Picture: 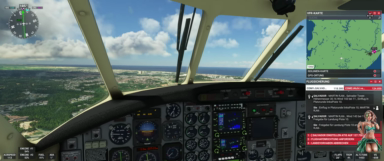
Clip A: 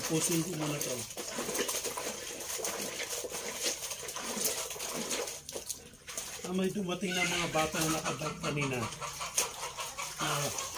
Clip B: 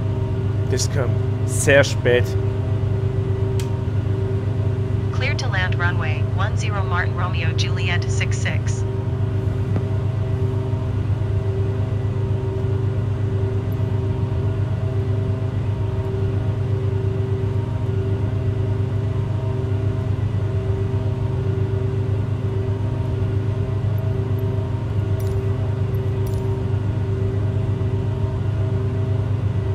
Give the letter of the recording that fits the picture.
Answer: B